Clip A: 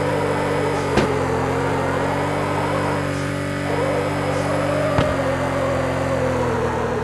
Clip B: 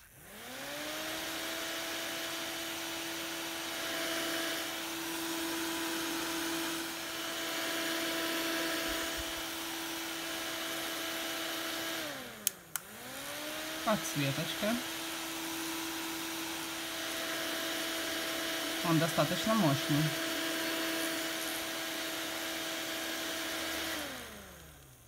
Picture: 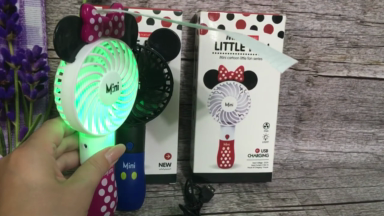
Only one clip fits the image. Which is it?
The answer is B